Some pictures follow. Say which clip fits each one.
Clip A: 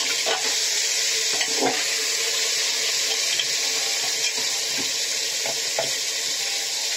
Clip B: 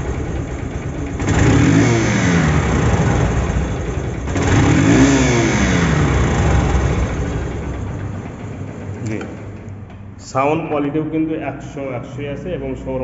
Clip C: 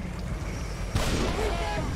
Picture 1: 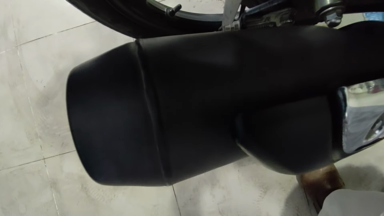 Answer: B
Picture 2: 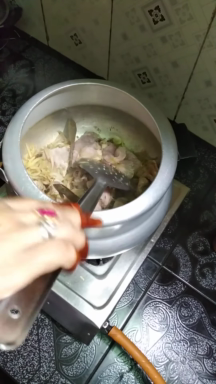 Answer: A